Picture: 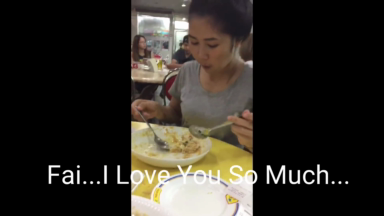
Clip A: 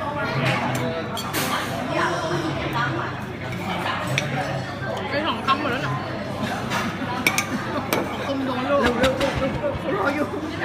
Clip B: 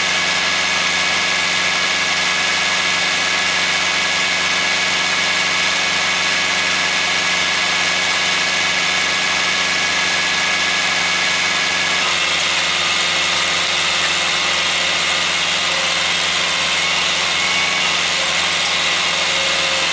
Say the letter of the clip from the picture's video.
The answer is A